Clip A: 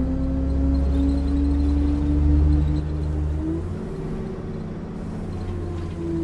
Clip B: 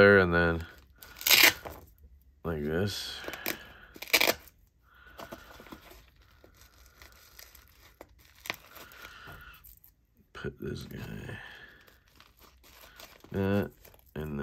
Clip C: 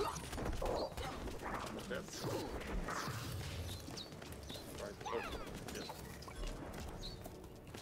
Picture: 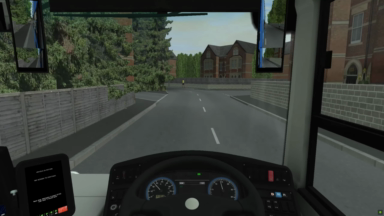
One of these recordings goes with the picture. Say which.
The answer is A